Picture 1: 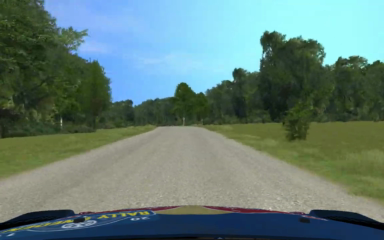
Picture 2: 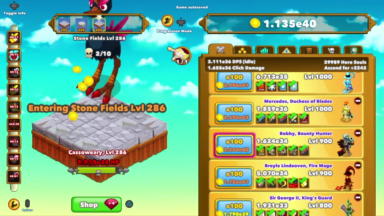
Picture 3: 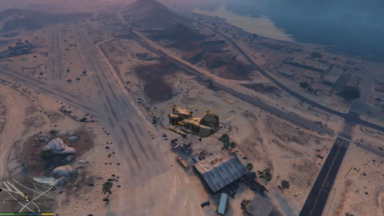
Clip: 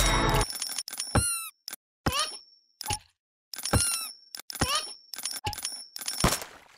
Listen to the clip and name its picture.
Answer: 2